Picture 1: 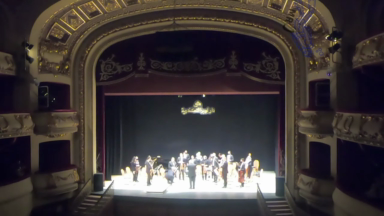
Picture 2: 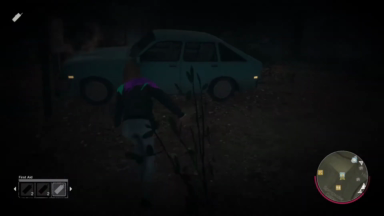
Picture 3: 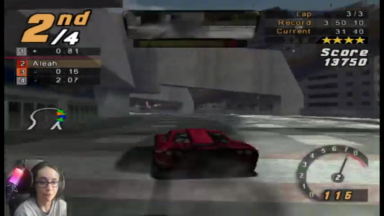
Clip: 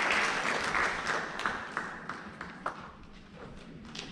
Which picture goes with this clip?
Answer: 1